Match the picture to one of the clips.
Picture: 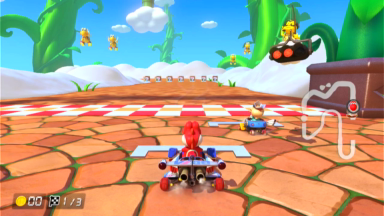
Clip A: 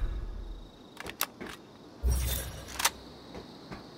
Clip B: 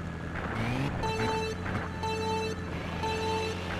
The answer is B